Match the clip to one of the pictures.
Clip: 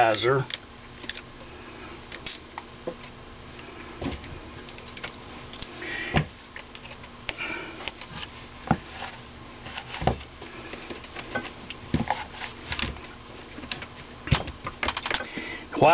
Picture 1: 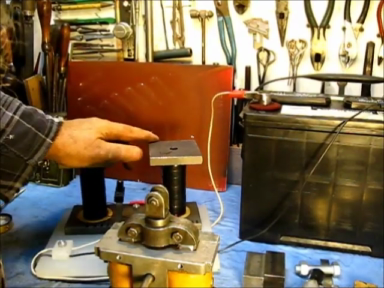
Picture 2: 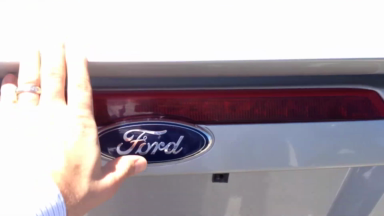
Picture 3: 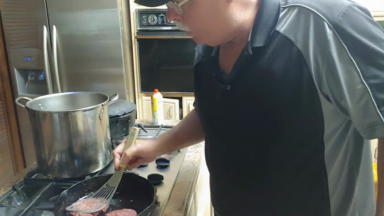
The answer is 1